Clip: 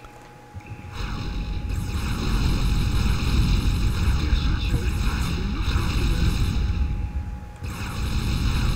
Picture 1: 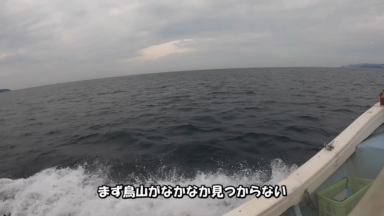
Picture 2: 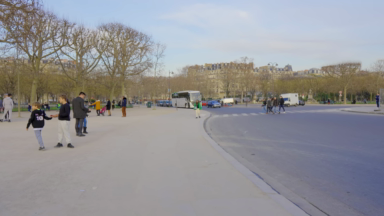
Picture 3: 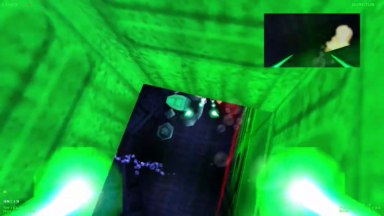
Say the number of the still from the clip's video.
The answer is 3